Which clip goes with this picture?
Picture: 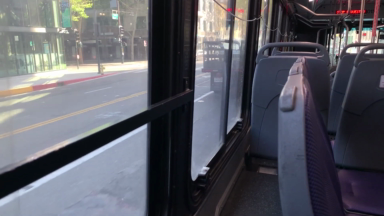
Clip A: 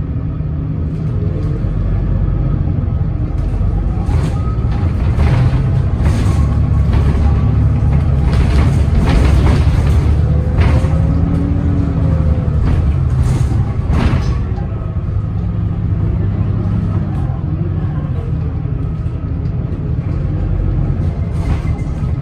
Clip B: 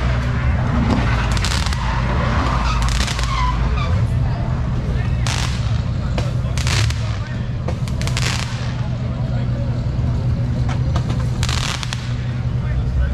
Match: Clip A